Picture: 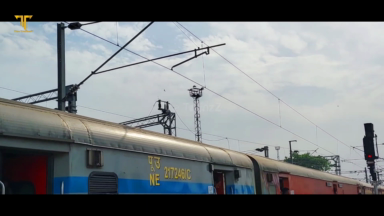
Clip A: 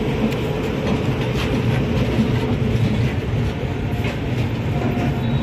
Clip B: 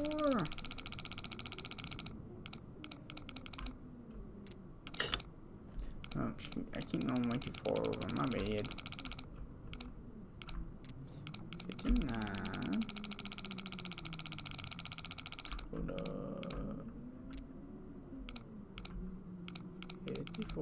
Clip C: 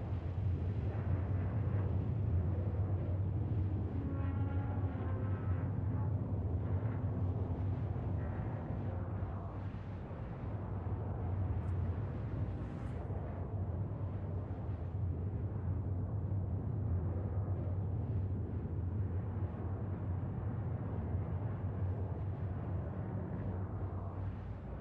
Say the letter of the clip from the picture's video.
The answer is A